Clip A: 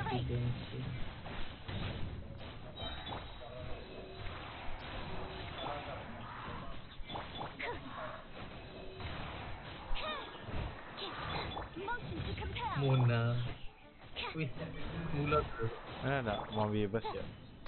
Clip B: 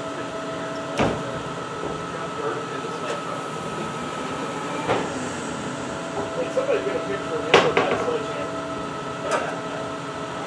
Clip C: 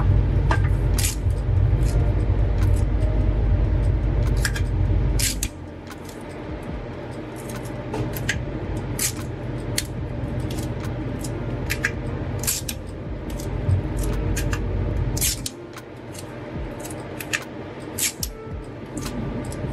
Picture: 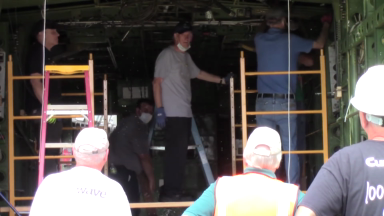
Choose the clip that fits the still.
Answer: B